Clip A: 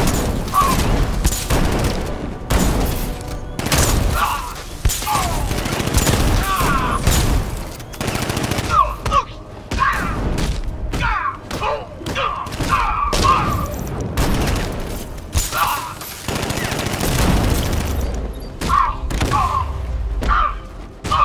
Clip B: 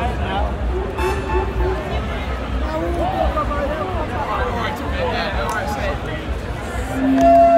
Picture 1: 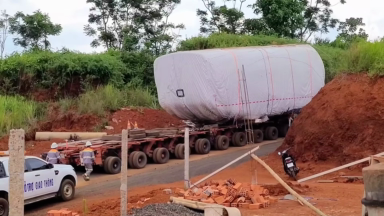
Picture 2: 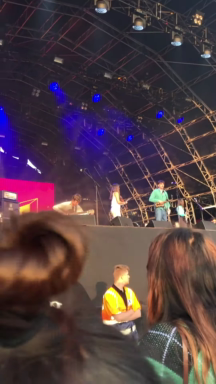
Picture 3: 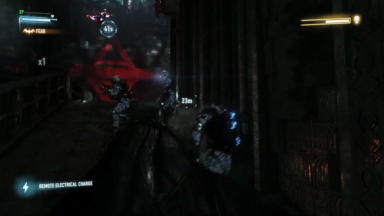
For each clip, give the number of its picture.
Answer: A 3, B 2